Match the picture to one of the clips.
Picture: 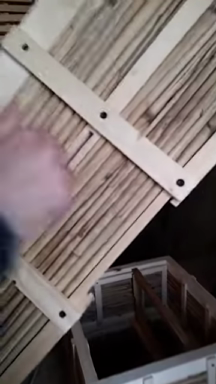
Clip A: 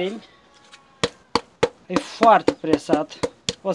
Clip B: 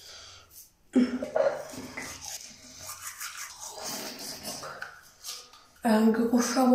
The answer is A